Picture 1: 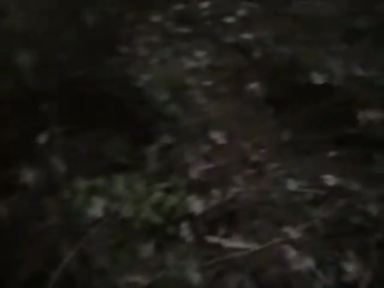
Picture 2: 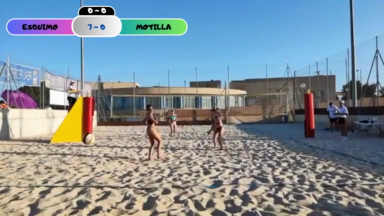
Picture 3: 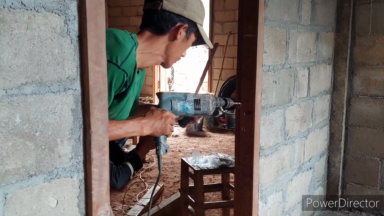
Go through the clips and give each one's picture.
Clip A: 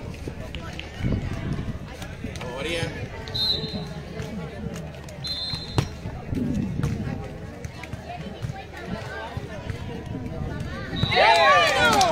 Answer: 2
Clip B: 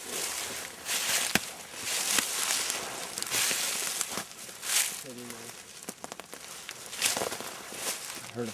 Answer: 1